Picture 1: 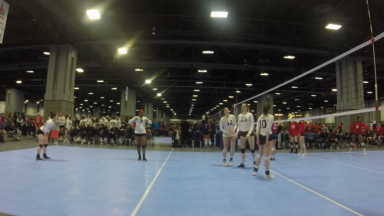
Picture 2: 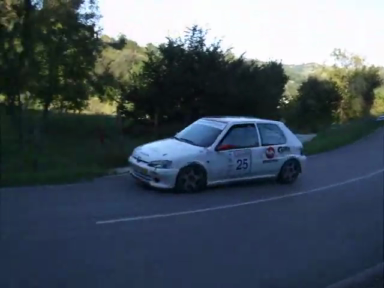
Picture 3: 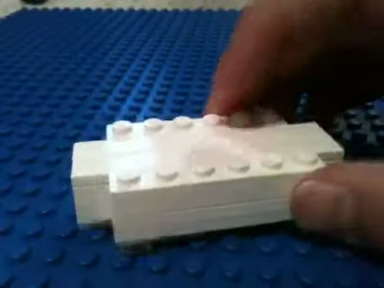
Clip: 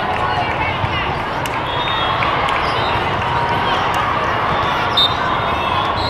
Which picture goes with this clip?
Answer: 1